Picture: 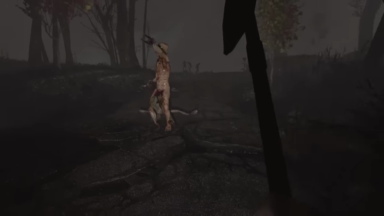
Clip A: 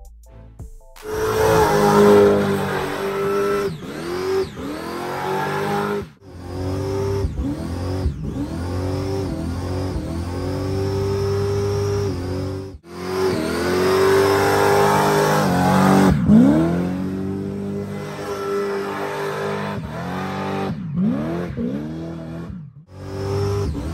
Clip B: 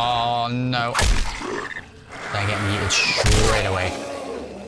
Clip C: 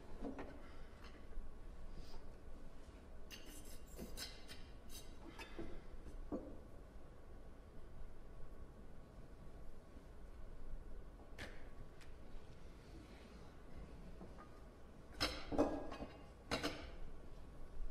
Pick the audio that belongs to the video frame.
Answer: B